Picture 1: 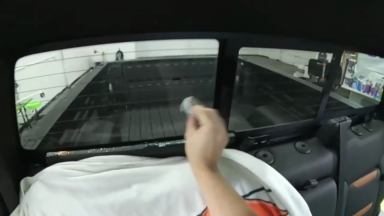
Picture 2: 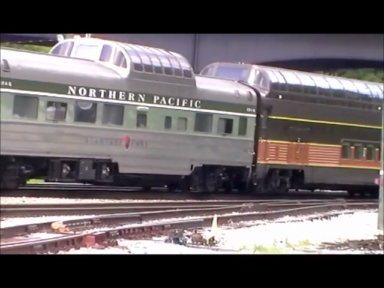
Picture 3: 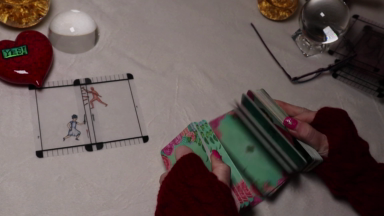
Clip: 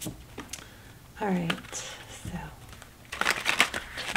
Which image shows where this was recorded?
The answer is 3